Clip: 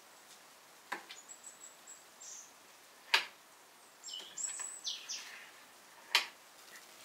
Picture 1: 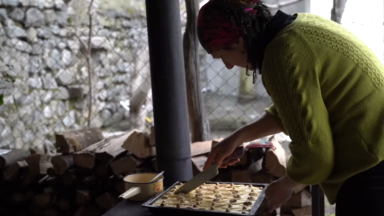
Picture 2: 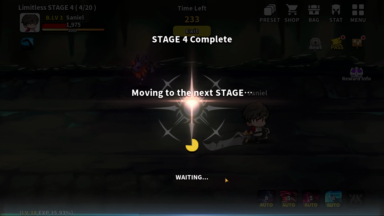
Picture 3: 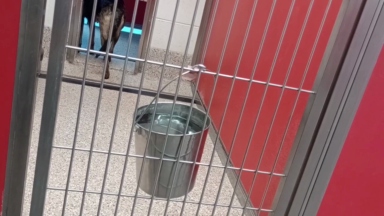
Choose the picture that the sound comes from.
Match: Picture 1